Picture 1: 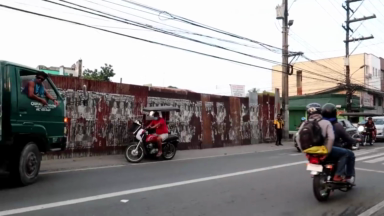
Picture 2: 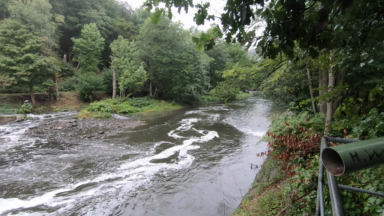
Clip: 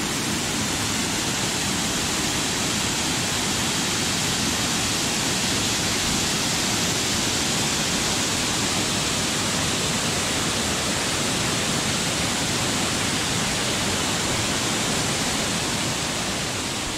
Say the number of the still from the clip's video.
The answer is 2